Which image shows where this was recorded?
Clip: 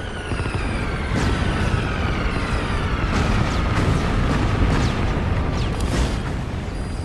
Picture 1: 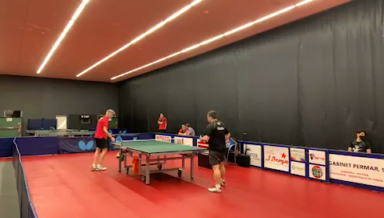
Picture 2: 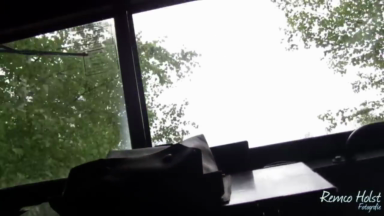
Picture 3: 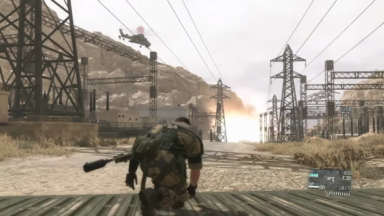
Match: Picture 3